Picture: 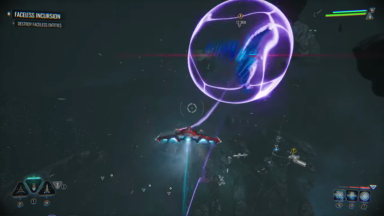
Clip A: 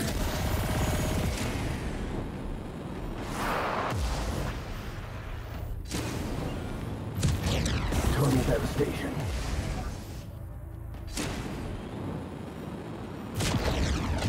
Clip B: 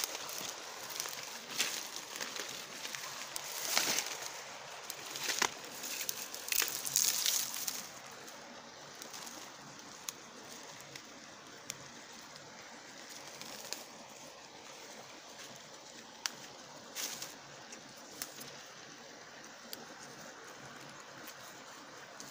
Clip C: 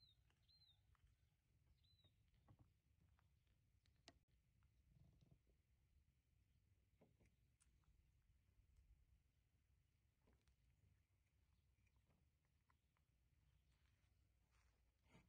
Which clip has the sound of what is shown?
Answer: A